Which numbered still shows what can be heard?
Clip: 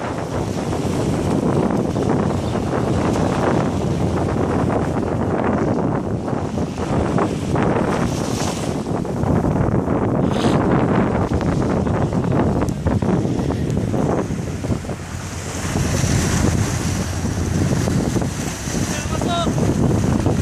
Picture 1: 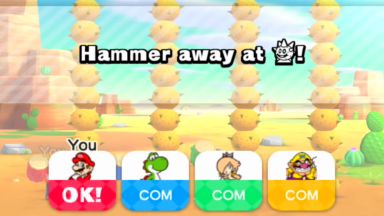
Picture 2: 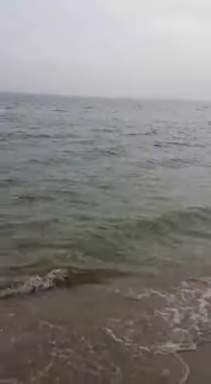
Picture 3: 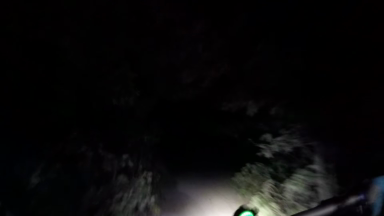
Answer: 2